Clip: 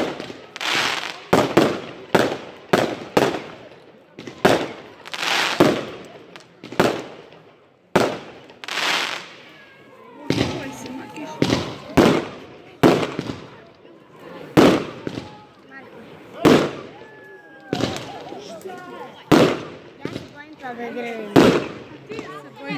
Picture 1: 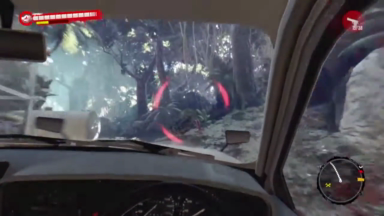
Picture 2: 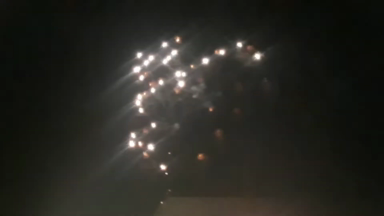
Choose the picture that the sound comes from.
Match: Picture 2